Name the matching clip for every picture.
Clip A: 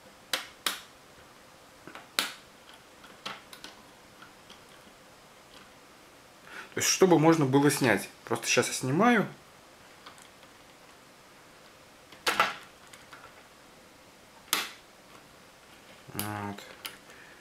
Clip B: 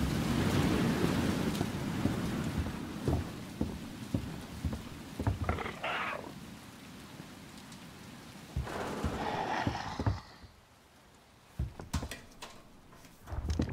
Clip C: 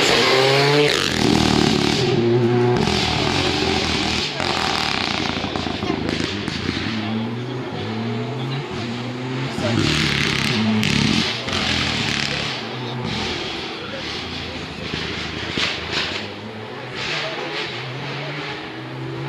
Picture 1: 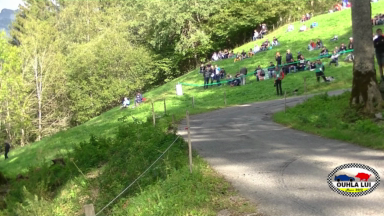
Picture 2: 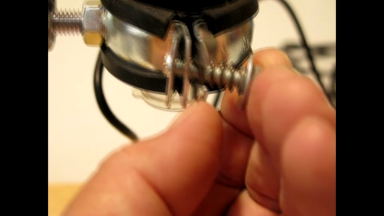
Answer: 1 C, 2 A